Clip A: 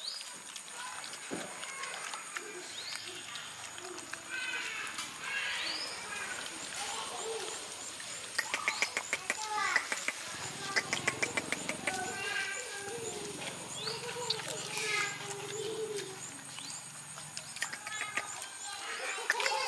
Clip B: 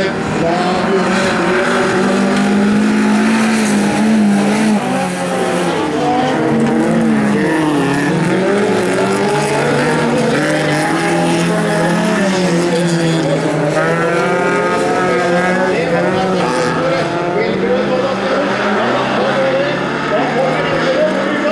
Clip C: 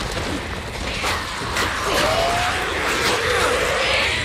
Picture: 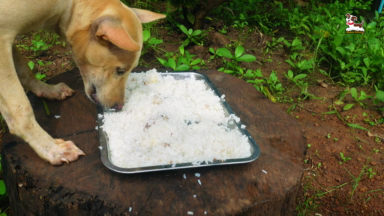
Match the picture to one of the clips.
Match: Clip A